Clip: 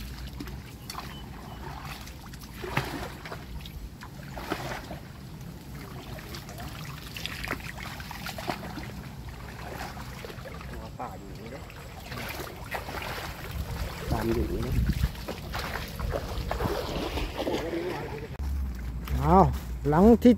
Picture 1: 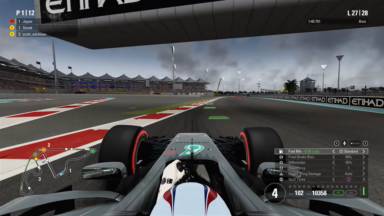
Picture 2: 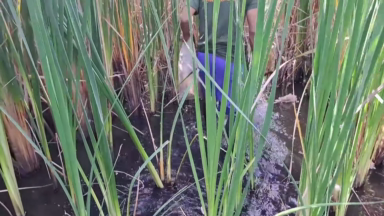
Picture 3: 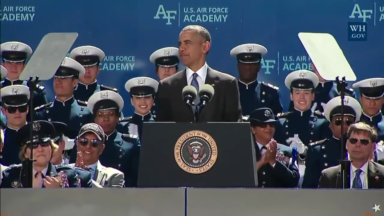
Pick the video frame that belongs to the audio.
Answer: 2